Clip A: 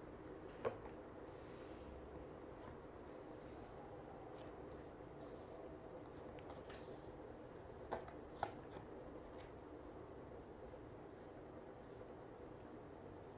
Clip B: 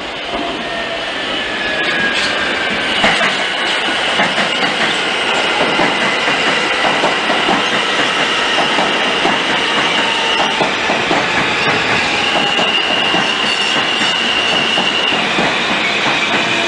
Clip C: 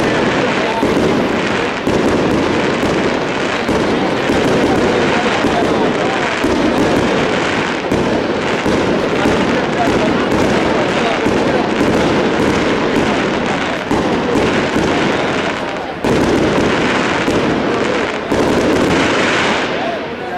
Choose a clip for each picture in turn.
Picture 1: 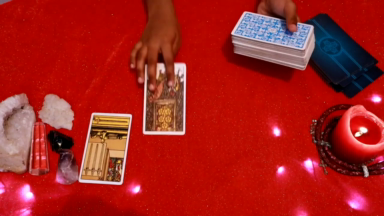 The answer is A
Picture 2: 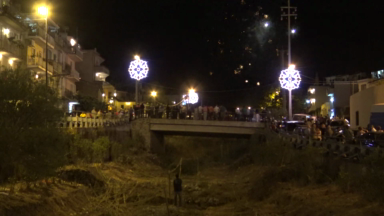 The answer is C